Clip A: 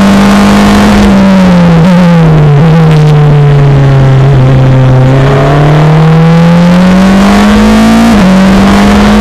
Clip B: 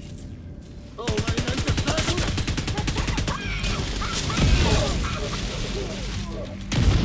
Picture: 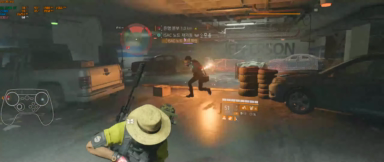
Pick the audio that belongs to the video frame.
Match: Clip B